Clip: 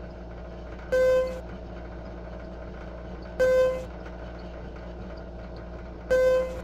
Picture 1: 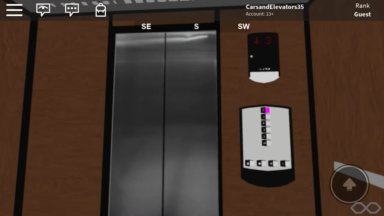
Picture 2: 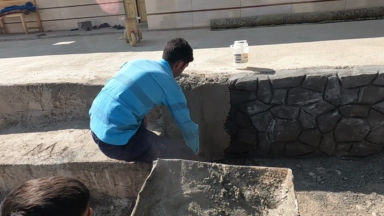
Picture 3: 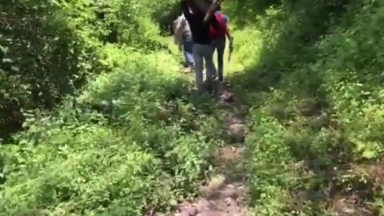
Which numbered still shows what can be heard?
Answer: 1